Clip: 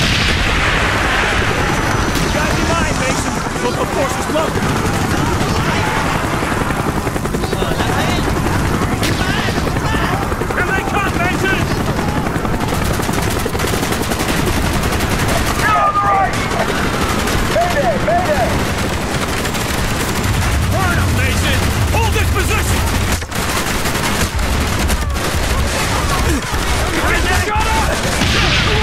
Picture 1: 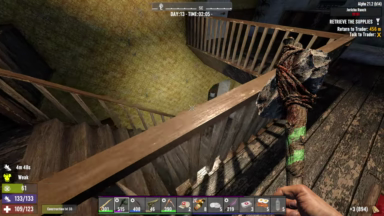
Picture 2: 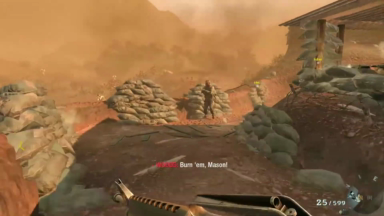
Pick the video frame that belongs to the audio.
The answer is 2